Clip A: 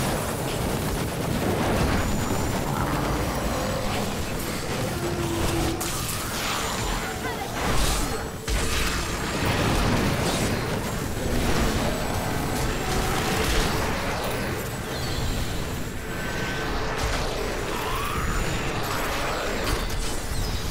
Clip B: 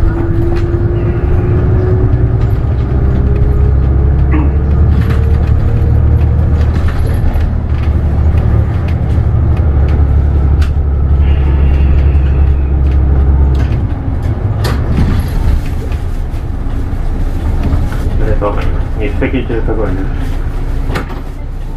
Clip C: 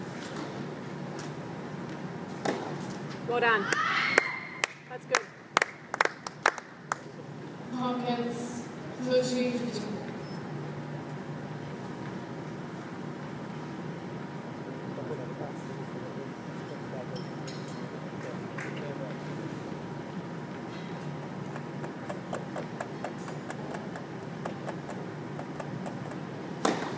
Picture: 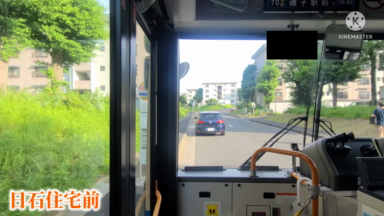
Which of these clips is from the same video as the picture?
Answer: B